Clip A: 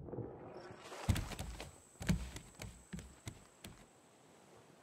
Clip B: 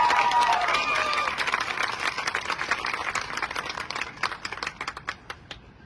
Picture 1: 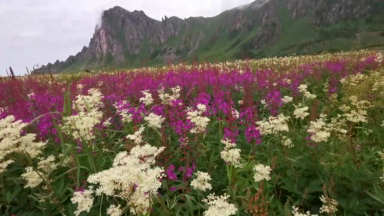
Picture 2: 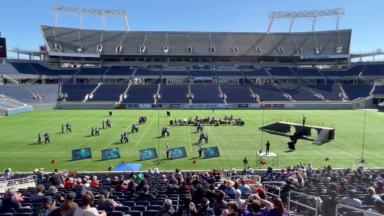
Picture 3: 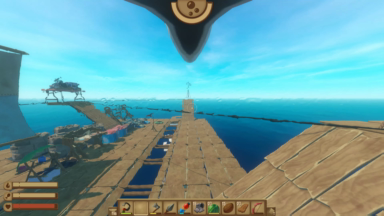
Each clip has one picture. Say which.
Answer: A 3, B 2